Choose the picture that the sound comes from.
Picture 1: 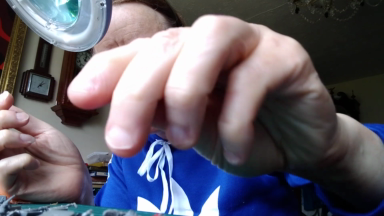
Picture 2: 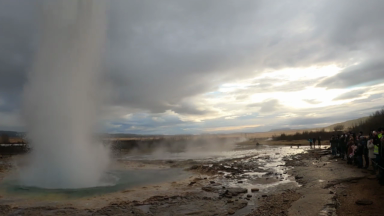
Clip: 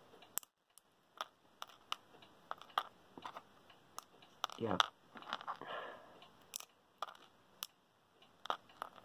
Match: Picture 1